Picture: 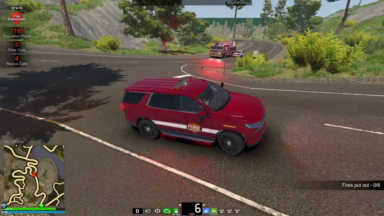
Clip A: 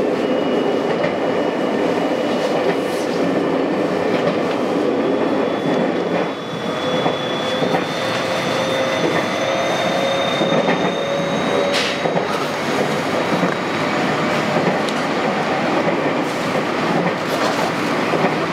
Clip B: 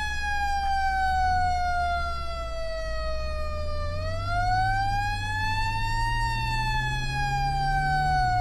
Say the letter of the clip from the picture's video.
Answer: B